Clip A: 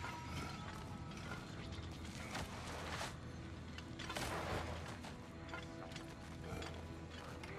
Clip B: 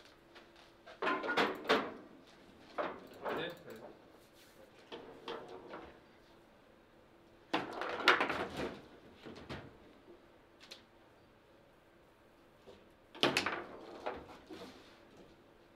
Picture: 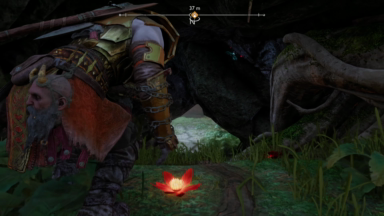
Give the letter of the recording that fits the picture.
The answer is A